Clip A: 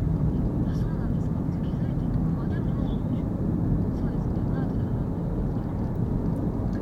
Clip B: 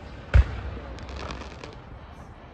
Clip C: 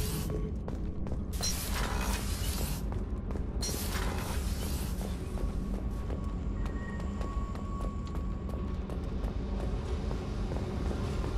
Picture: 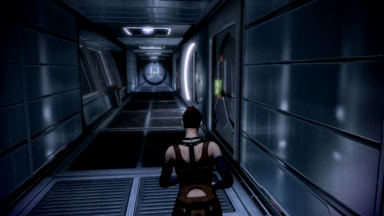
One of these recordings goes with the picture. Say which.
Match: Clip C